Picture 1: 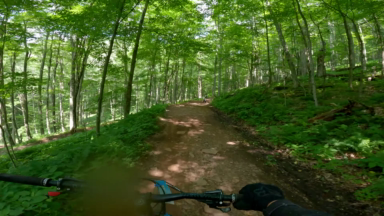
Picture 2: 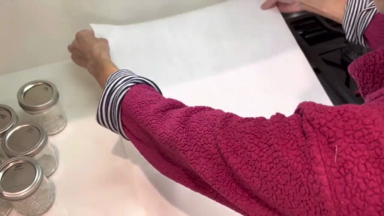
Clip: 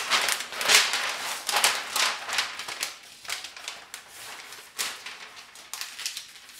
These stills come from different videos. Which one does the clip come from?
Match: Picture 2